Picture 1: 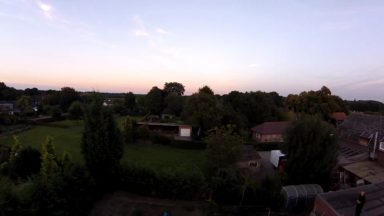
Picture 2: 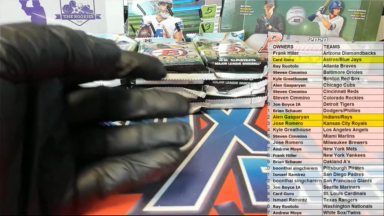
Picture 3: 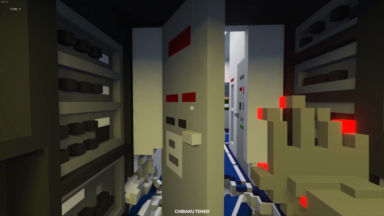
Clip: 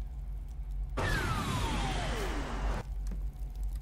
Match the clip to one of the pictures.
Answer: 3